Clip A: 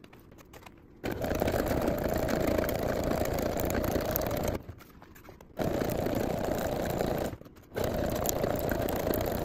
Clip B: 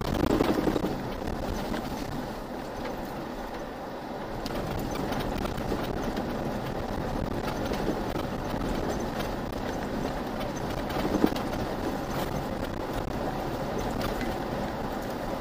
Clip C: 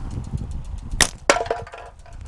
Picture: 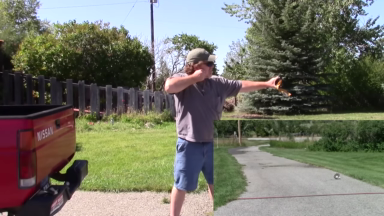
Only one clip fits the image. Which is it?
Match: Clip C